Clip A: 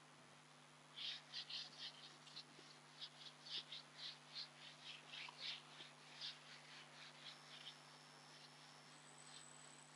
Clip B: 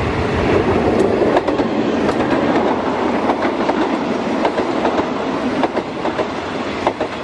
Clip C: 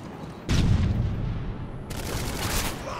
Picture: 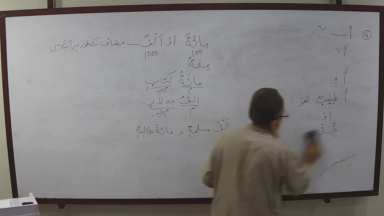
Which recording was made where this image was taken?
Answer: A